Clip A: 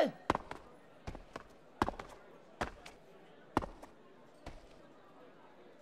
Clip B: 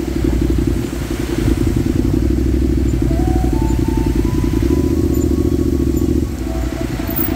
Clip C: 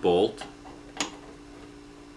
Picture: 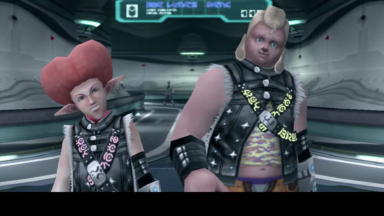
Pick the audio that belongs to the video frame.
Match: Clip A